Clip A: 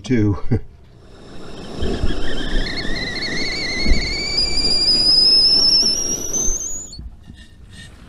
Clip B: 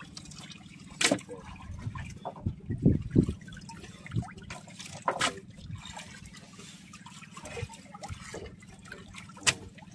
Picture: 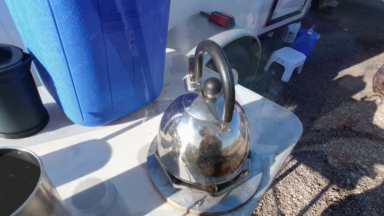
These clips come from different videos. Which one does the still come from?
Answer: A